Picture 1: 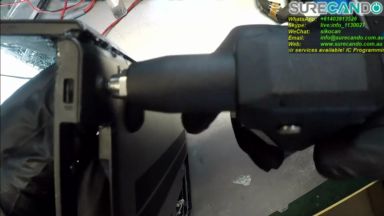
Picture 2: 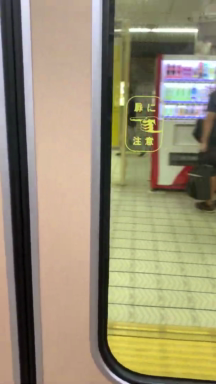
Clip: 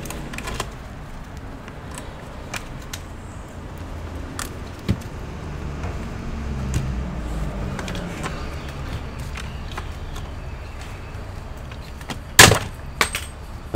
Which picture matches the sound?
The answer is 1